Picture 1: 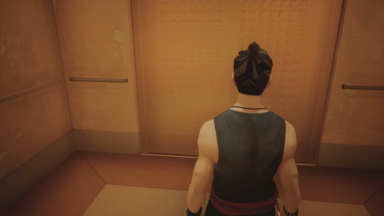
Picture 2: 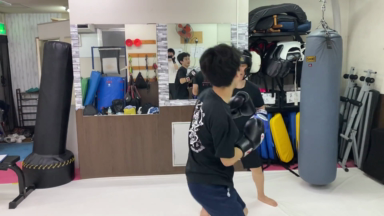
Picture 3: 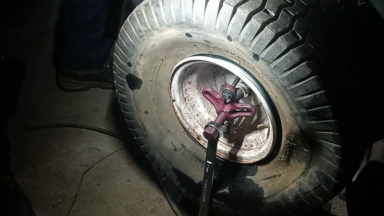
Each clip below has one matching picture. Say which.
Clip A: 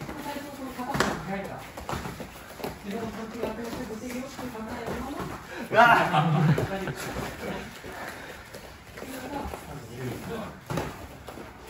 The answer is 2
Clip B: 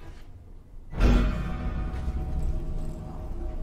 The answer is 1